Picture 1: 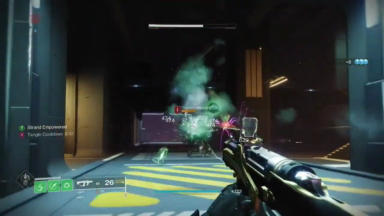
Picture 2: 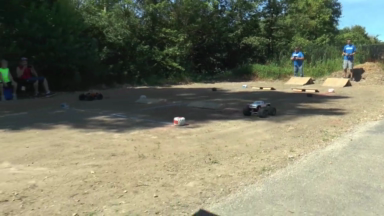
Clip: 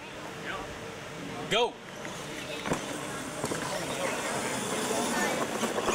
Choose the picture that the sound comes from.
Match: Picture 2